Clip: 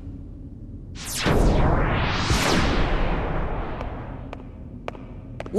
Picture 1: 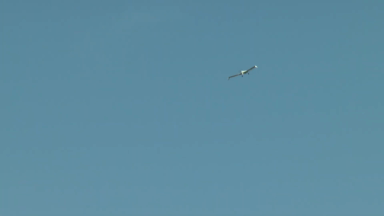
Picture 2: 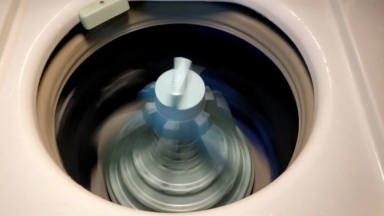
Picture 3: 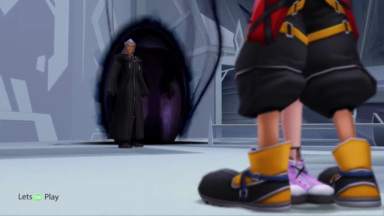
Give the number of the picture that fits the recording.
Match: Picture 3